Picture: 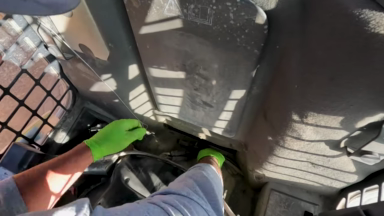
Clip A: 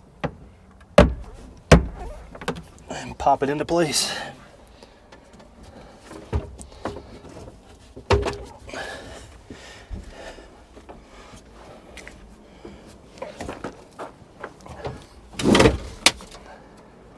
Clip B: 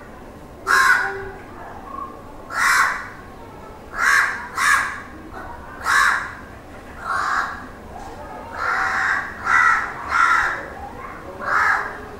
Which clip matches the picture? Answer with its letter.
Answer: A